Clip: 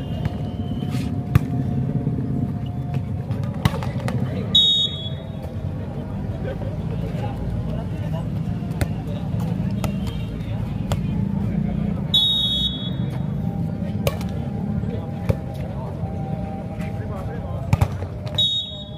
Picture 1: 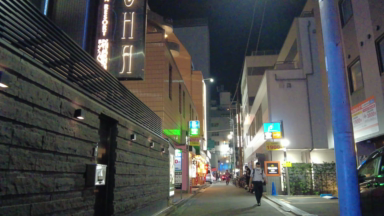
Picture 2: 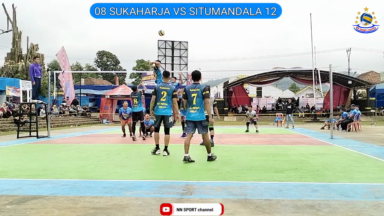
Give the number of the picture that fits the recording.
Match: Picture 2